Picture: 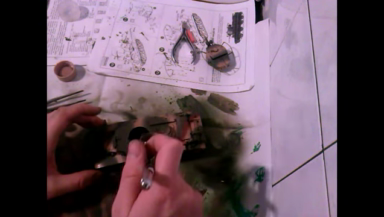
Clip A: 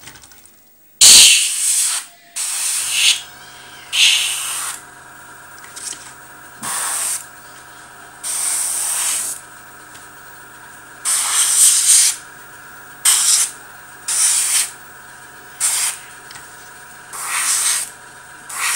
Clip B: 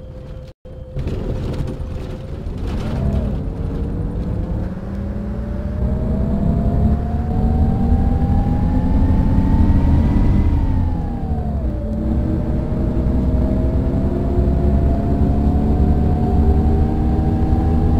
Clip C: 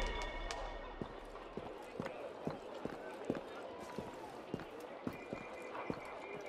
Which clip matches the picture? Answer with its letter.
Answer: A